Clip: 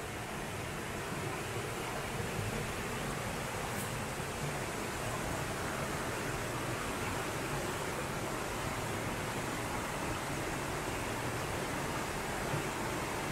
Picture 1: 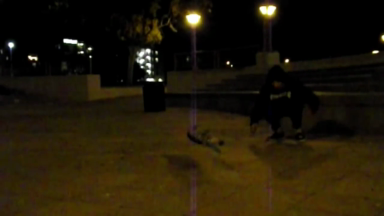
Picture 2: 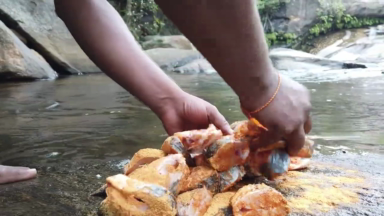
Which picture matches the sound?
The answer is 2